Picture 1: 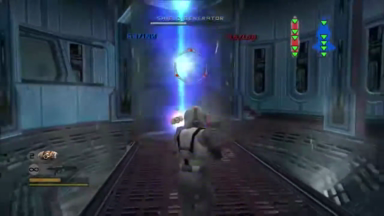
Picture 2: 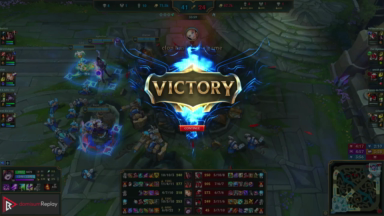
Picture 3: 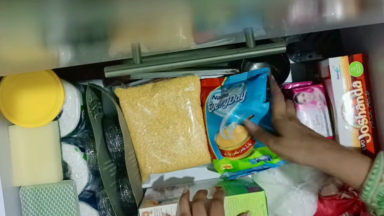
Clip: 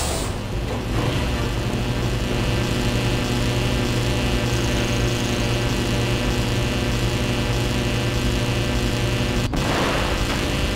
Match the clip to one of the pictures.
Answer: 1